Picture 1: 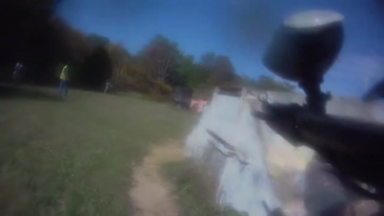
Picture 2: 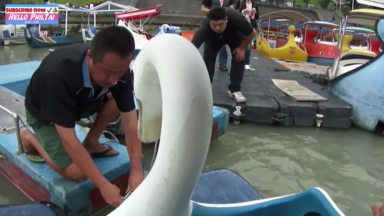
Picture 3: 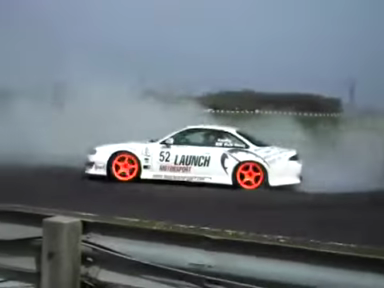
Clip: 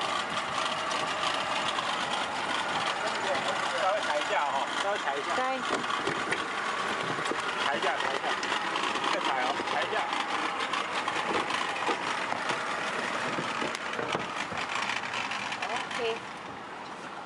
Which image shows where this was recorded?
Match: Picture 2